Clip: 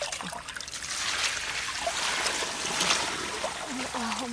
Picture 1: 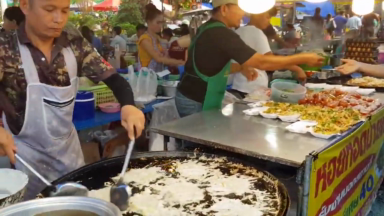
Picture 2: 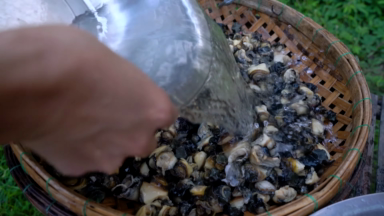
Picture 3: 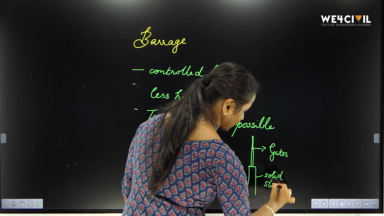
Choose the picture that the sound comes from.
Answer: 2